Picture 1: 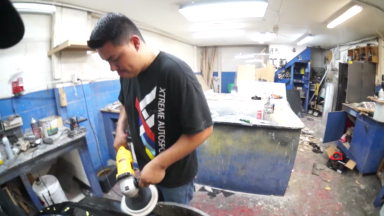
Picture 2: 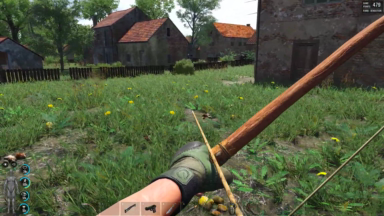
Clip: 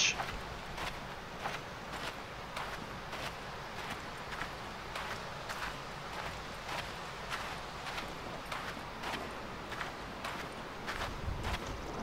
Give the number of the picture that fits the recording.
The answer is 2